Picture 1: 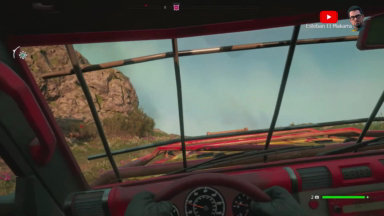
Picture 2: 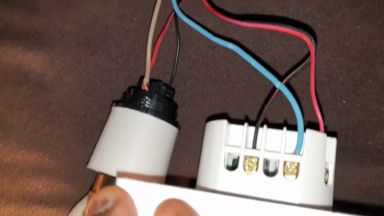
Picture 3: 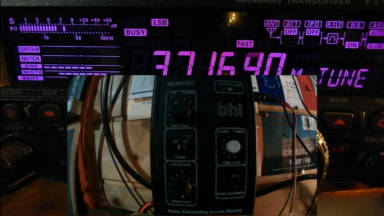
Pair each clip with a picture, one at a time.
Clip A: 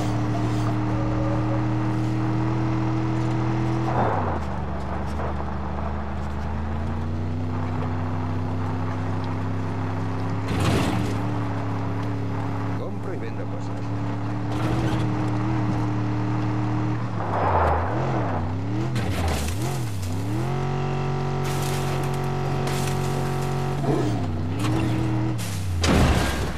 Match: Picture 1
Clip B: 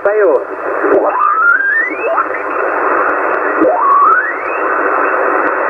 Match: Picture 3